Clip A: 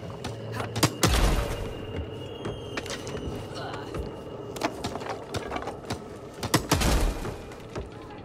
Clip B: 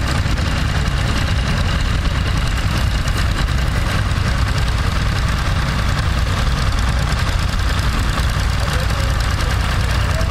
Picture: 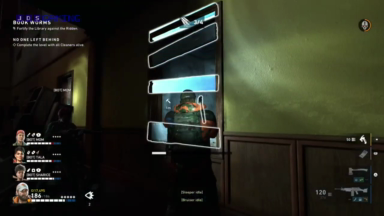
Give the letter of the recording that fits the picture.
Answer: A